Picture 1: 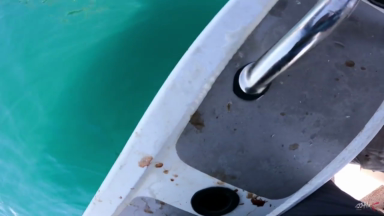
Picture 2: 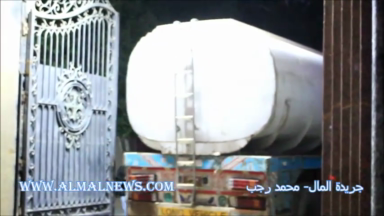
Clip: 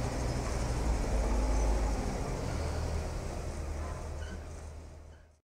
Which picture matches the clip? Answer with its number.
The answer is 2